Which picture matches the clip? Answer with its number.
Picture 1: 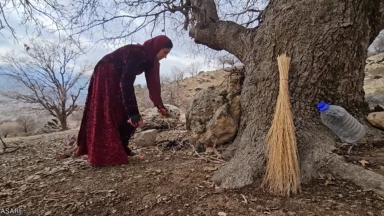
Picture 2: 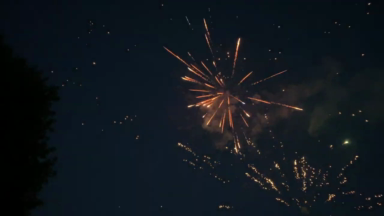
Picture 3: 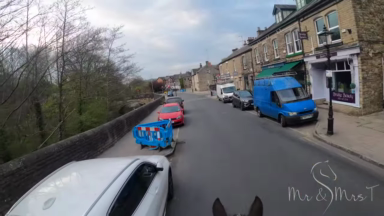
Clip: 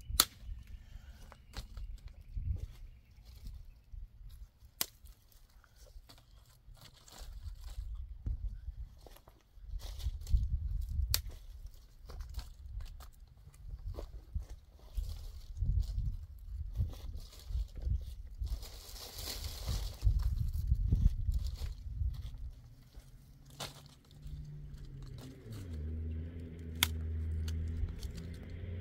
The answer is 1